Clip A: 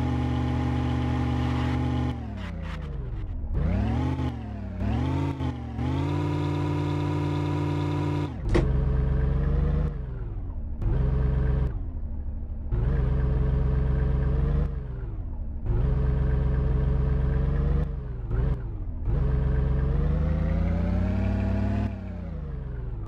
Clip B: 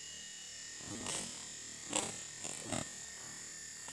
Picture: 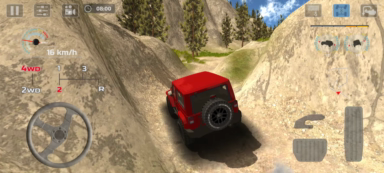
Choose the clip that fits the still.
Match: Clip A